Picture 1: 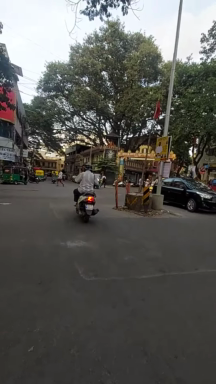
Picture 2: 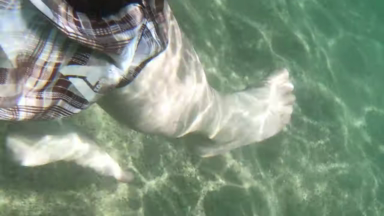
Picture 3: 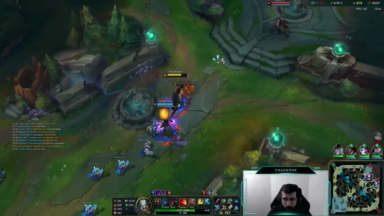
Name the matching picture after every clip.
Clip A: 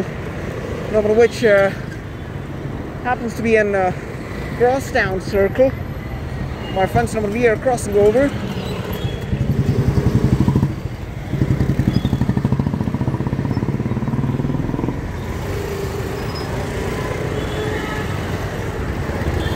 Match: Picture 1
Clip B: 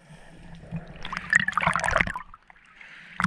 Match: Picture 2